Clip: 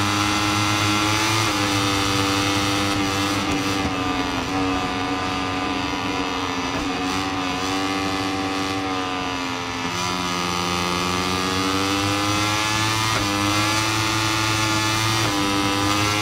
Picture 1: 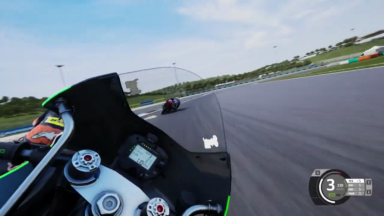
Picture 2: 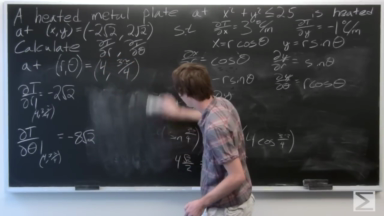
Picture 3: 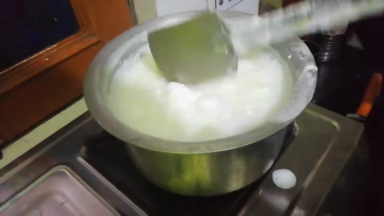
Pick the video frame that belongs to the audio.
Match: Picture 1